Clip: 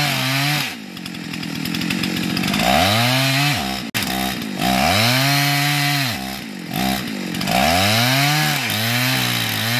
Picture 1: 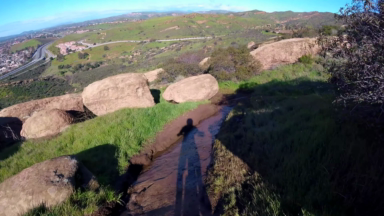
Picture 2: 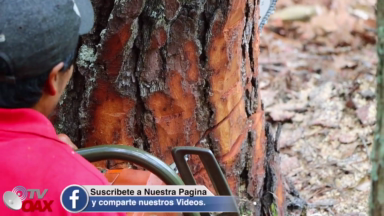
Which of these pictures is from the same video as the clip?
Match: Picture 2